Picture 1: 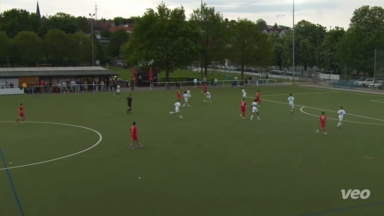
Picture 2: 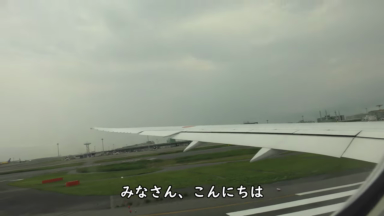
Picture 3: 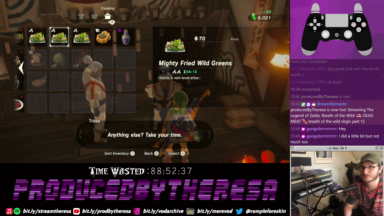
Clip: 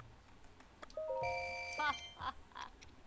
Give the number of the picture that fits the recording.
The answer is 3